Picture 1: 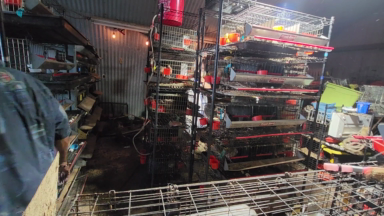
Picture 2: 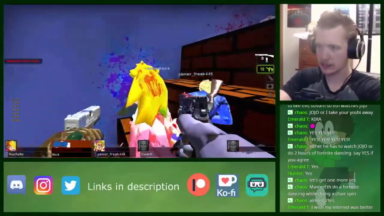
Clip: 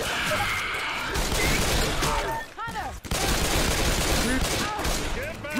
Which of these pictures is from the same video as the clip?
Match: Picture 2